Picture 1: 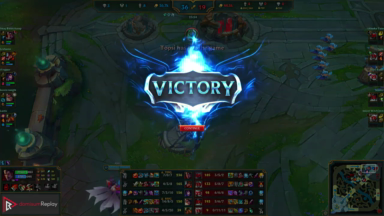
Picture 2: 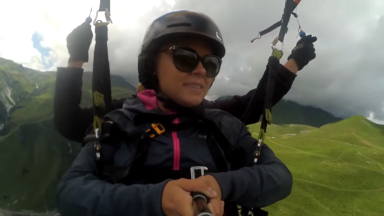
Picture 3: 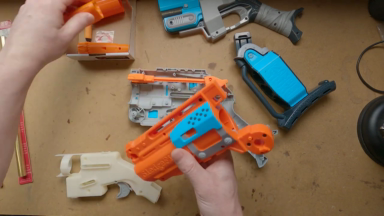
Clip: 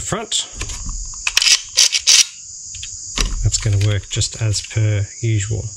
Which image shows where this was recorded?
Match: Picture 3